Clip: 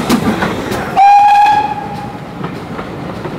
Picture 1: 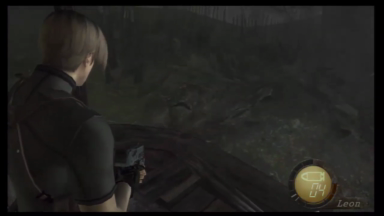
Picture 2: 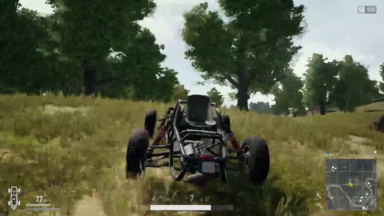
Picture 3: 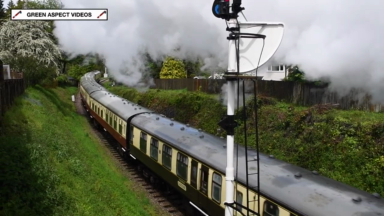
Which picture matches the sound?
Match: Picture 3